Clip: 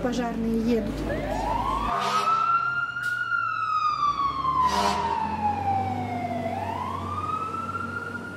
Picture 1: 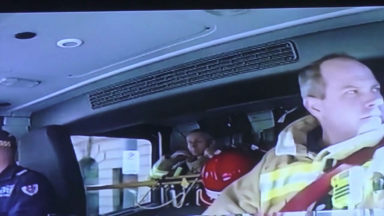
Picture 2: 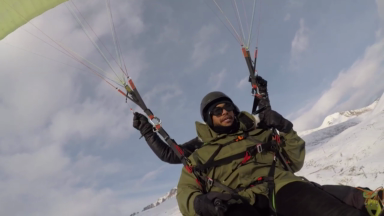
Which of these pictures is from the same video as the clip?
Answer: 1